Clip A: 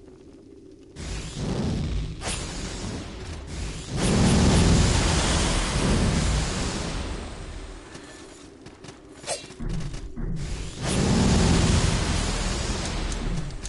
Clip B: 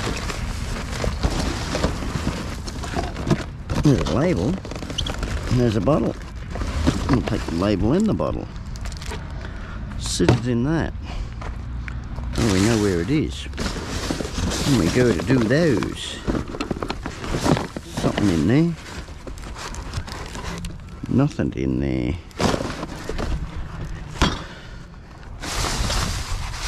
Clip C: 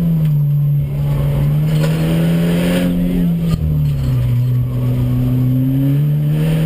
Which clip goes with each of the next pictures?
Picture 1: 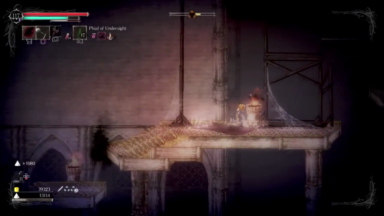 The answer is A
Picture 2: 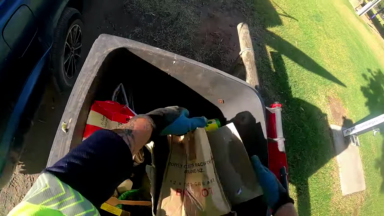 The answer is B